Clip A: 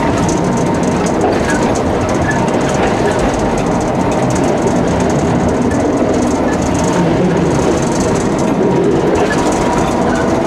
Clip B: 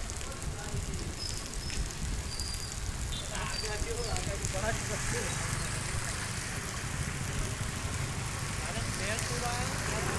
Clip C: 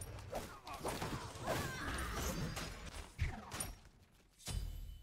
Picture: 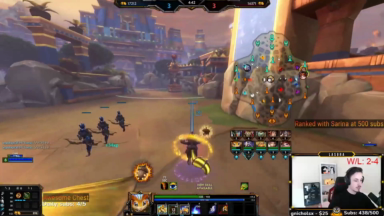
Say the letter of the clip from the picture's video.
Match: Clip C